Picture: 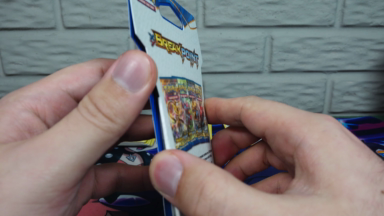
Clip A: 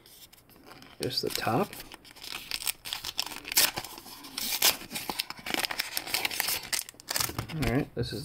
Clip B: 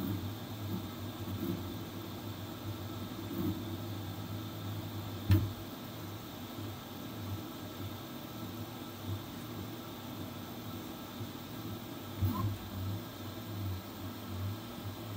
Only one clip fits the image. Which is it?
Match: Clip A